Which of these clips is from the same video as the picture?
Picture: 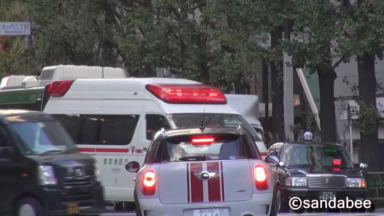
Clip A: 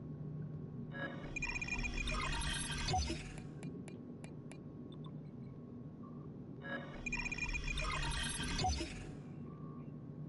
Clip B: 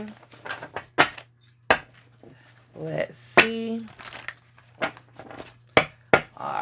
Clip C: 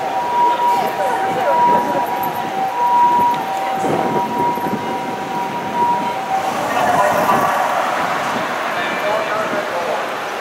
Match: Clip C